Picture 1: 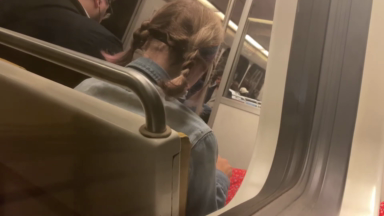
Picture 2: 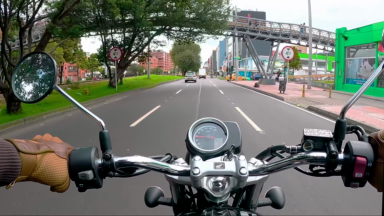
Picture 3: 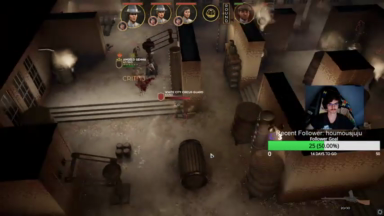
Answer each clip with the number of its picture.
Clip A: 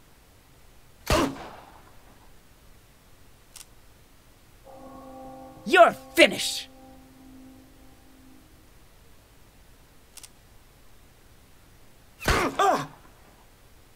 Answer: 3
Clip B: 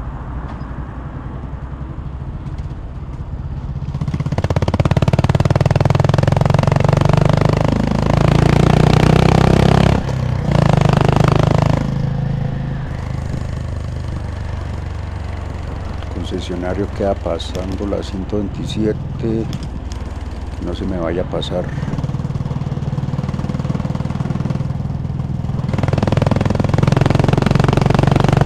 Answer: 2